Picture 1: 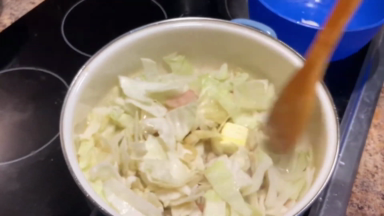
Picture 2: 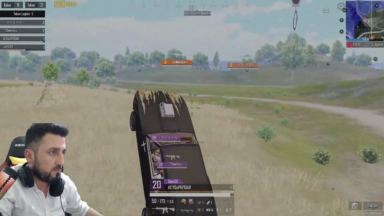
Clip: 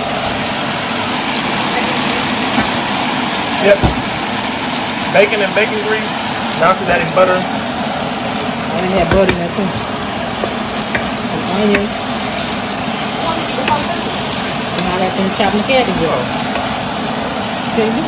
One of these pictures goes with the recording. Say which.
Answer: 1